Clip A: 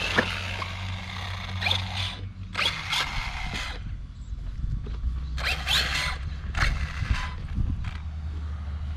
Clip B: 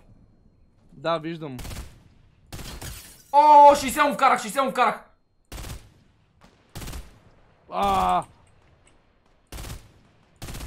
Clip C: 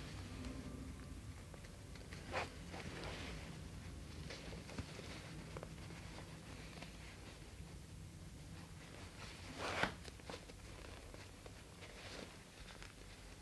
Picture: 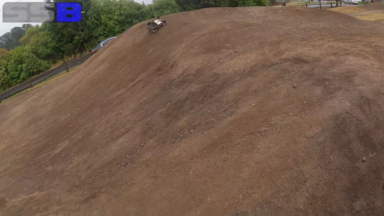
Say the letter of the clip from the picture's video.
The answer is A